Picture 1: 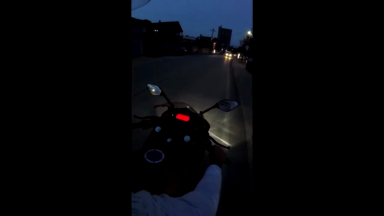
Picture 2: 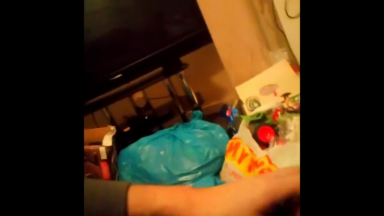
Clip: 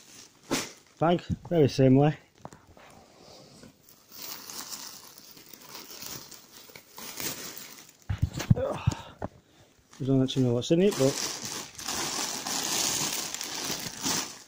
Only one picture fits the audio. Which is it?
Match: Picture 2